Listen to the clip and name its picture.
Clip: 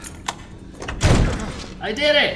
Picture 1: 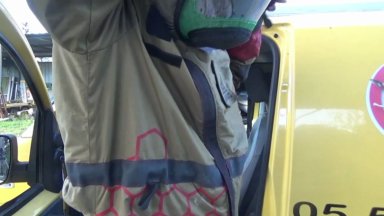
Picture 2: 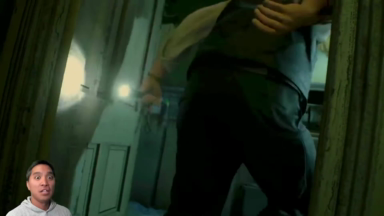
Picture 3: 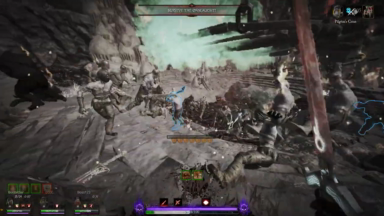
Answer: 2